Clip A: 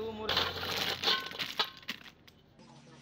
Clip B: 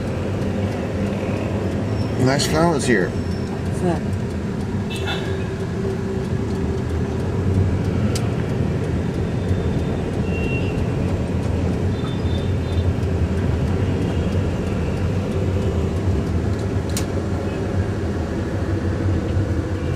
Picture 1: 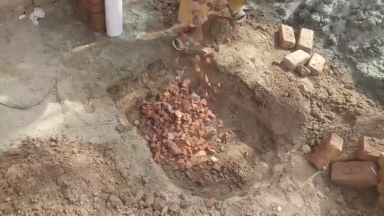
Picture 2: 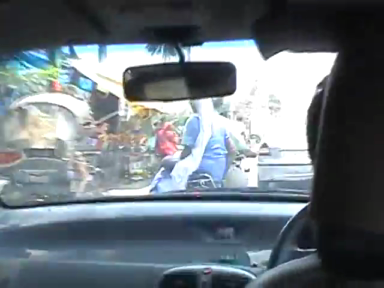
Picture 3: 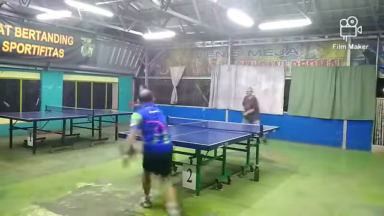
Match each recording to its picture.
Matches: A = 1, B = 2